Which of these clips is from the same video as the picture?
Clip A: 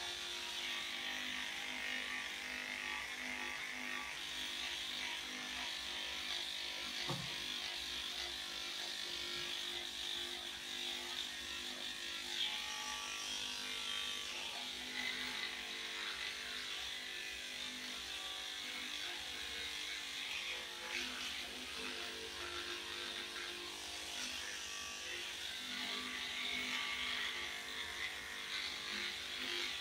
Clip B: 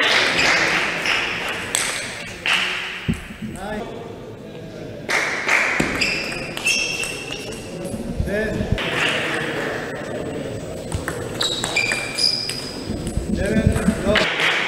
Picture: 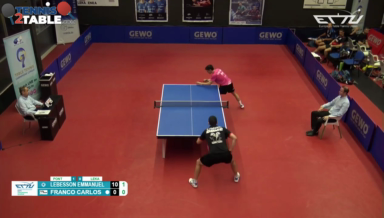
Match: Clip B